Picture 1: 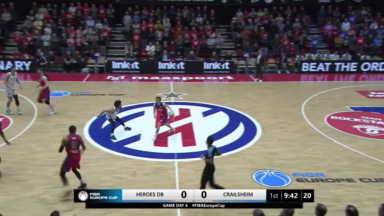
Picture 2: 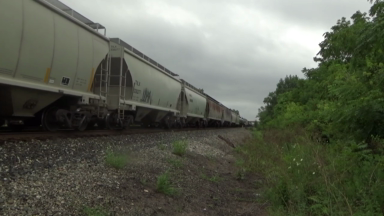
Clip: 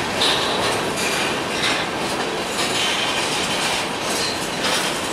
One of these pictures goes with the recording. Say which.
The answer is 2